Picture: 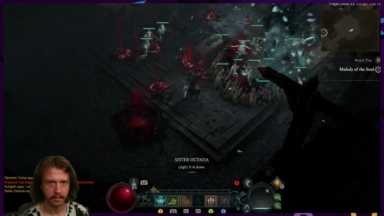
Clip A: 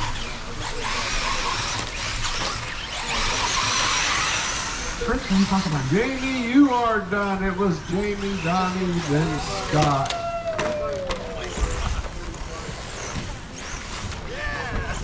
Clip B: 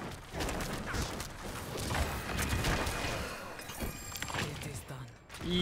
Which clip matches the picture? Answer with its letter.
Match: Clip B